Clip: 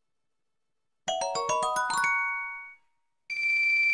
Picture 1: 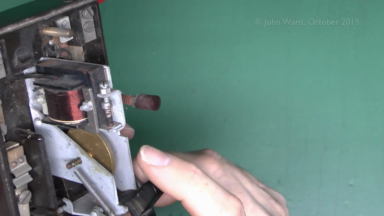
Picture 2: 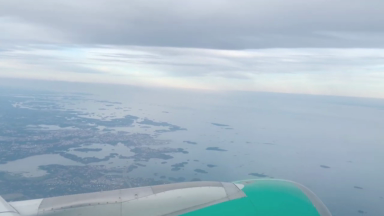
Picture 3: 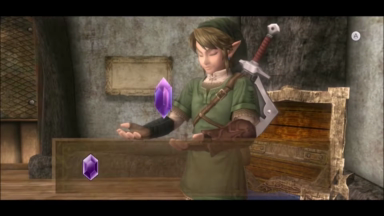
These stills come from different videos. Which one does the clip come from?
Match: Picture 3